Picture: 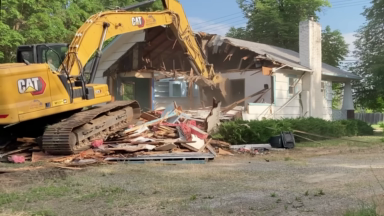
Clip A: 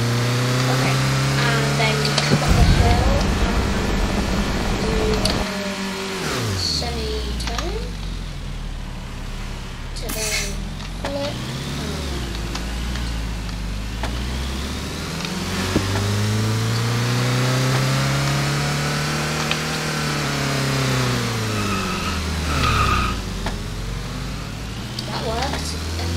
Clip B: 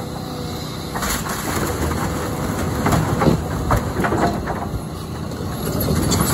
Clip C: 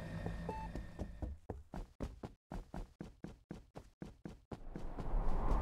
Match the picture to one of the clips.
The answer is B